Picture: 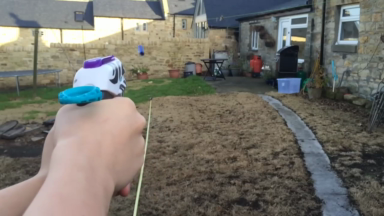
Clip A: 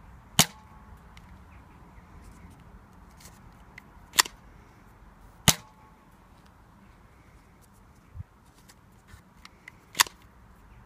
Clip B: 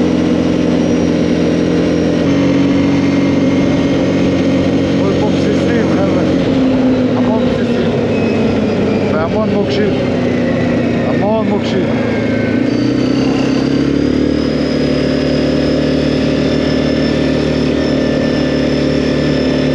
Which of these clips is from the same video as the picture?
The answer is A